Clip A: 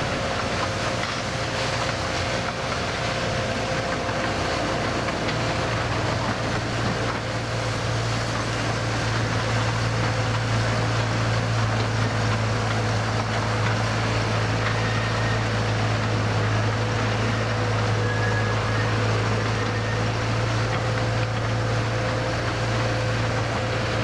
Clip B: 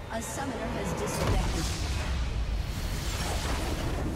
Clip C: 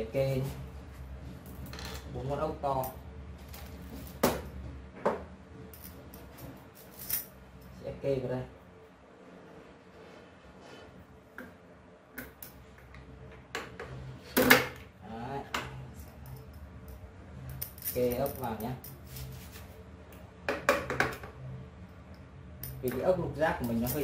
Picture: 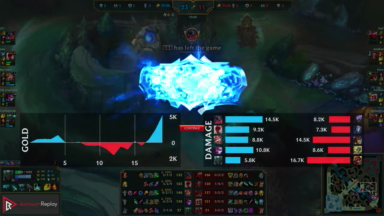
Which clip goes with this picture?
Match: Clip B